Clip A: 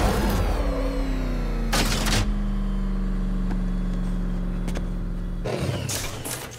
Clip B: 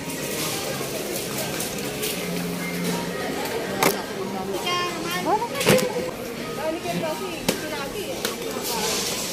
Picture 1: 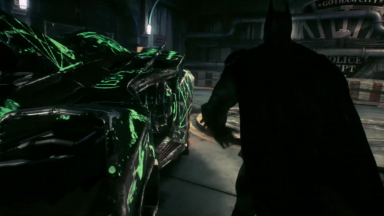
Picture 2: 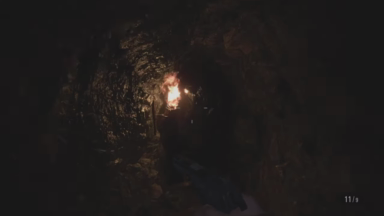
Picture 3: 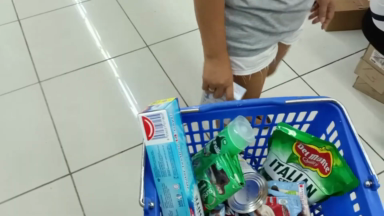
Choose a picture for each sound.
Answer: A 1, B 3